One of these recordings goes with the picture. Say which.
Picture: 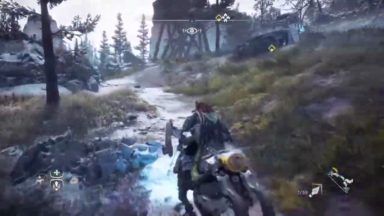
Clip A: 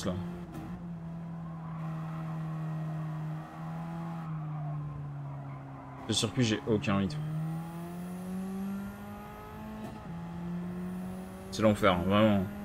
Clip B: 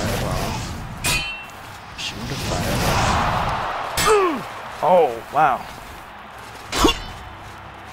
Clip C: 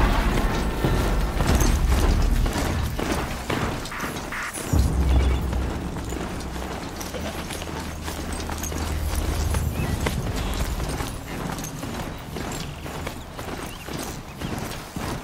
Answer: C